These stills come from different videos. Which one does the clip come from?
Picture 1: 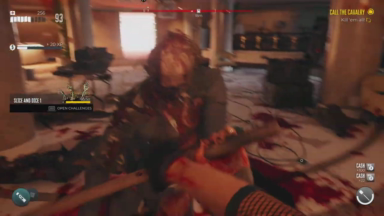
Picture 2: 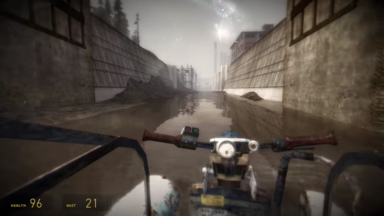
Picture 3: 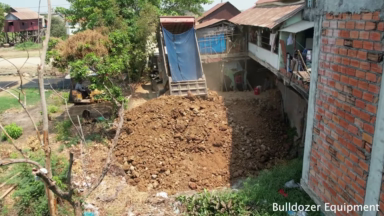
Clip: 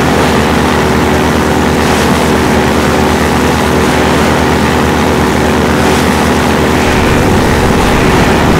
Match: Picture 2